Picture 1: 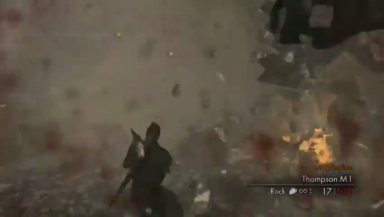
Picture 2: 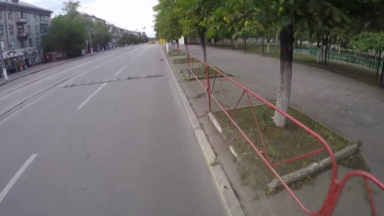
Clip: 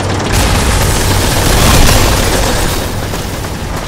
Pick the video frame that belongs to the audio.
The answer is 1